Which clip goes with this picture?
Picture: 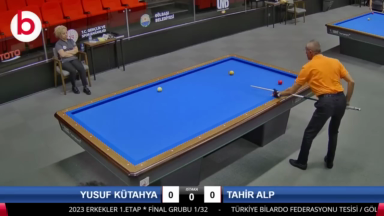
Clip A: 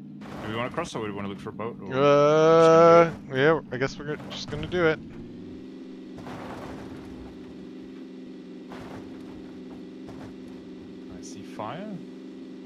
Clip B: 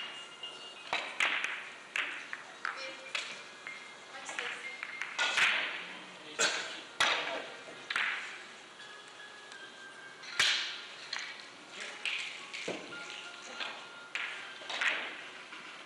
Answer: B